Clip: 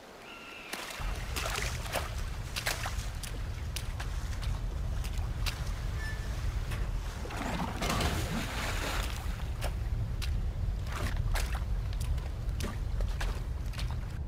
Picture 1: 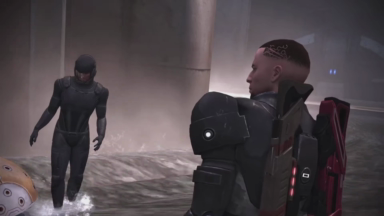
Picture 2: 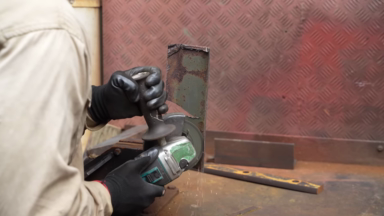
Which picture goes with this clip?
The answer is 1